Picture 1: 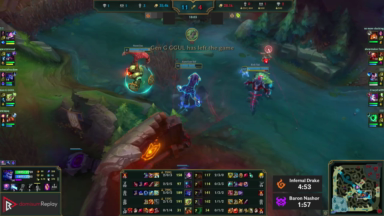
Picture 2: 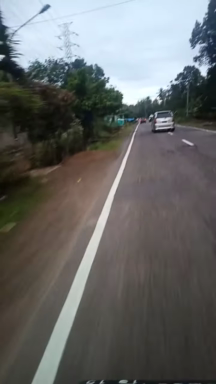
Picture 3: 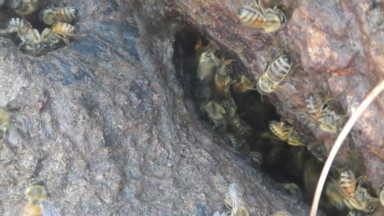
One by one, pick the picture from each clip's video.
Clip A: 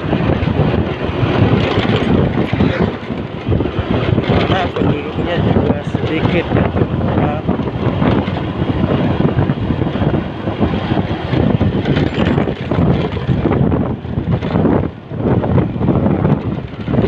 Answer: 2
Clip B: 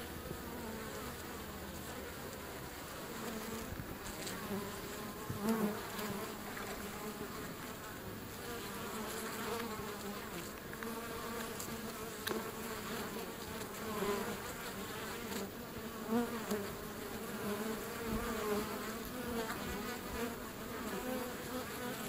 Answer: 3